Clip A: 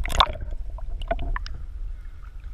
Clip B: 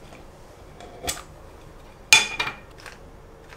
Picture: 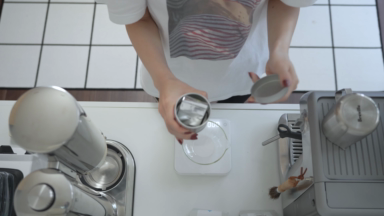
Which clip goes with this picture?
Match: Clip B